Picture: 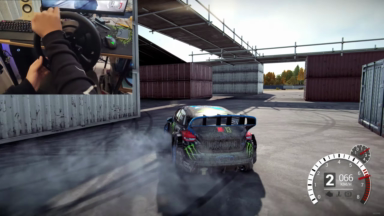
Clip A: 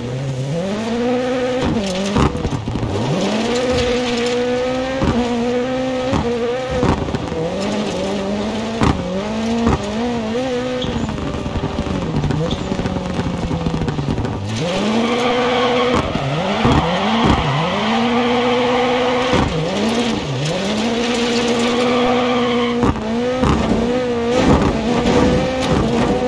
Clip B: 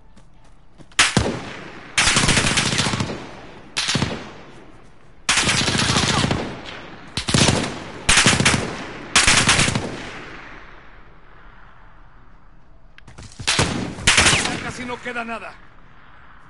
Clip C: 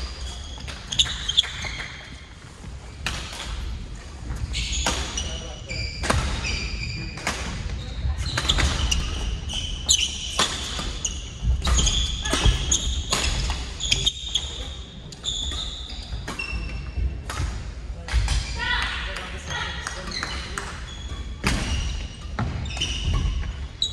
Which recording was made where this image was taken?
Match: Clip A